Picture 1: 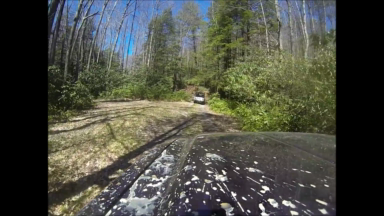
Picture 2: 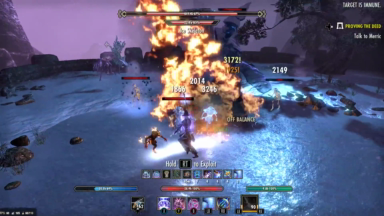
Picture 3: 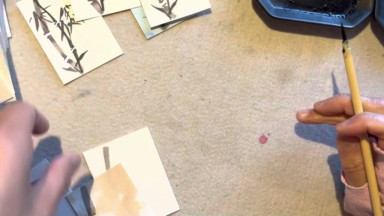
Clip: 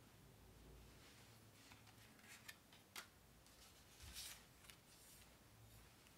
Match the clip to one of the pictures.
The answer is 3